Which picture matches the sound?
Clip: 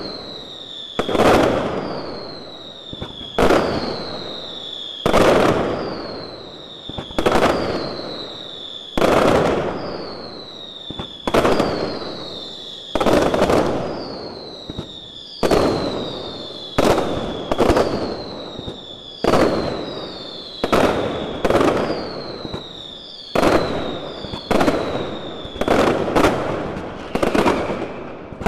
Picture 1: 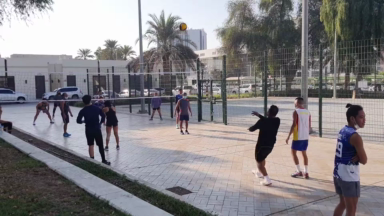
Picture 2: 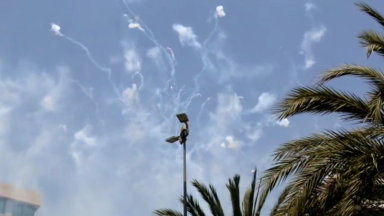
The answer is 2